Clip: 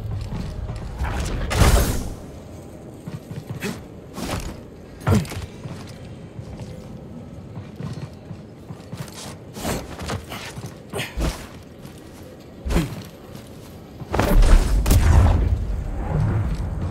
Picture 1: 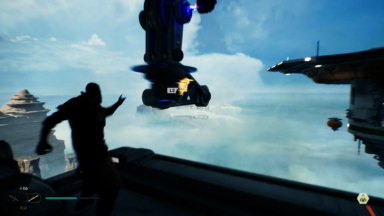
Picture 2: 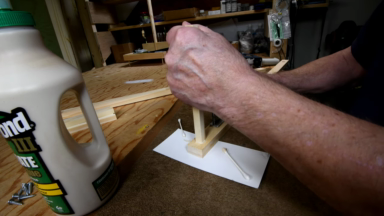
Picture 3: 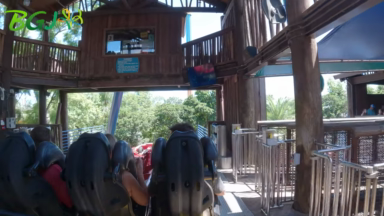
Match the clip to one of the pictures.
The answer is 1